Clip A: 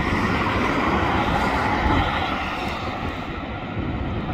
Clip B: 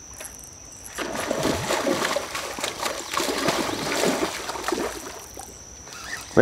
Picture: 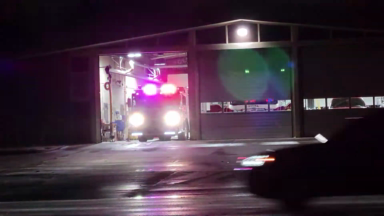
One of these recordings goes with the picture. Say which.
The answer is A